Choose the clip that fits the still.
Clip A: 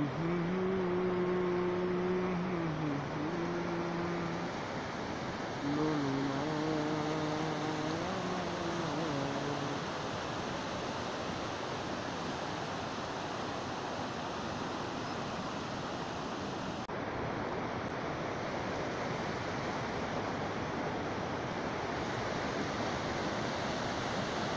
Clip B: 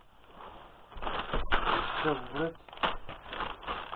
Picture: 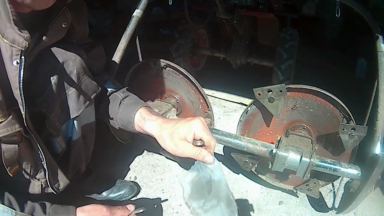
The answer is B